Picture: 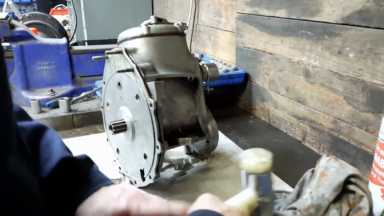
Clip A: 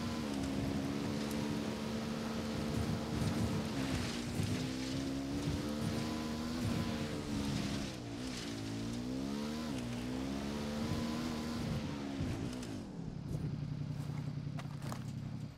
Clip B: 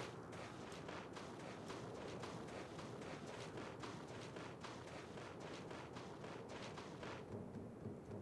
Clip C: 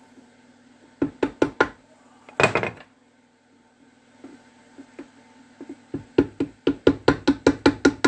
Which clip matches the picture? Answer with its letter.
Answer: C